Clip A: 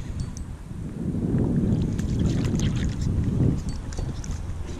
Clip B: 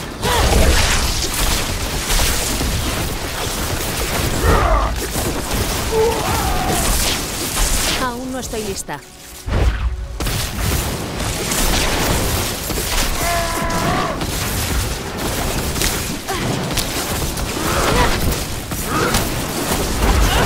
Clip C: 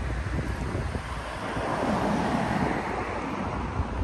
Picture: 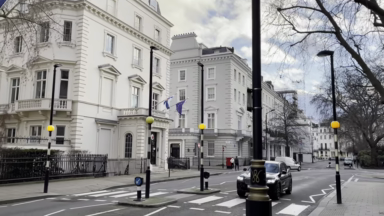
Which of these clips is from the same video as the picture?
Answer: C